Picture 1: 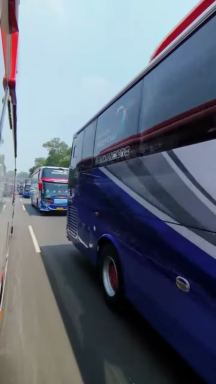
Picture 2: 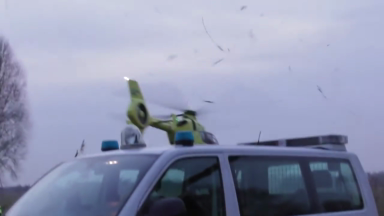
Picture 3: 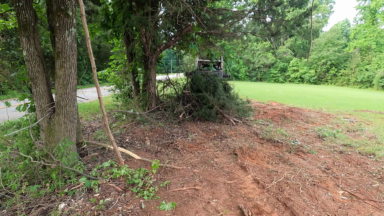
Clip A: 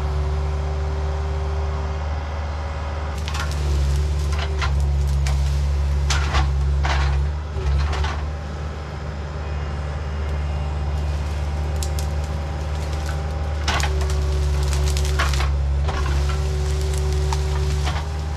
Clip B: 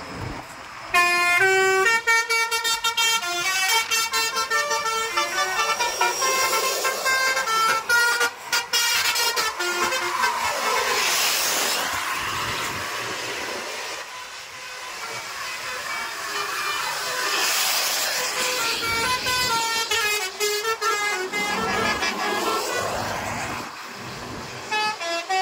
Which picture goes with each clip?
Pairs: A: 3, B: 1